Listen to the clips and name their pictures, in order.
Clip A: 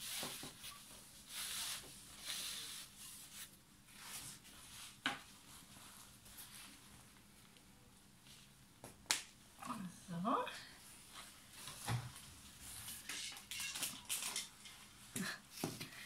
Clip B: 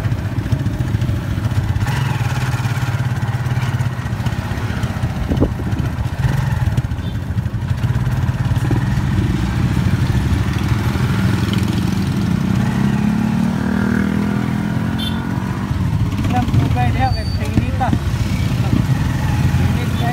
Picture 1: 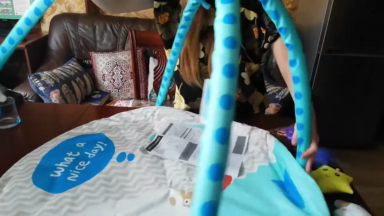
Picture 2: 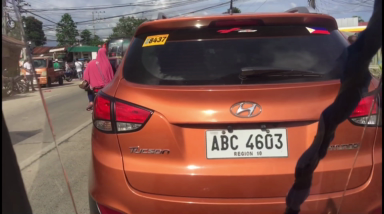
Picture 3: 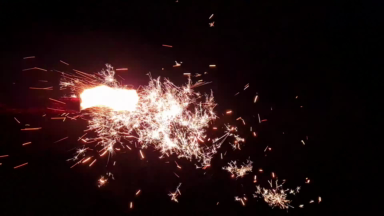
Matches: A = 1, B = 2